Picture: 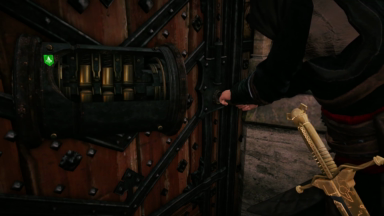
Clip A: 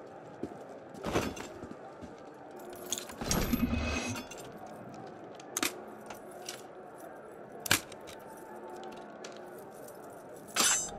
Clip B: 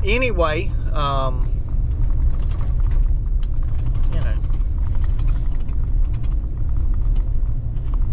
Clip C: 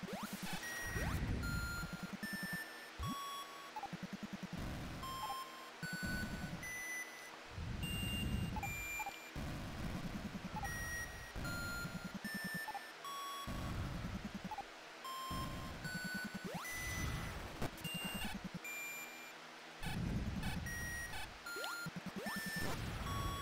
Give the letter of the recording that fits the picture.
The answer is A